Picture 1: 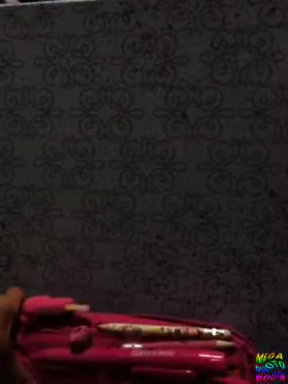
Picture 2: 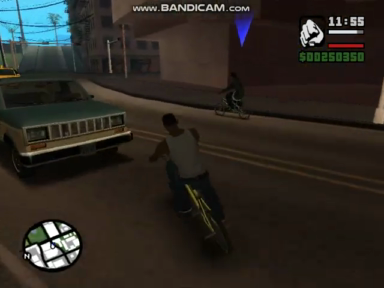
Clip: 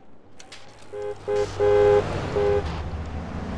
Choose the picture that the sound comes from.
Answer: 2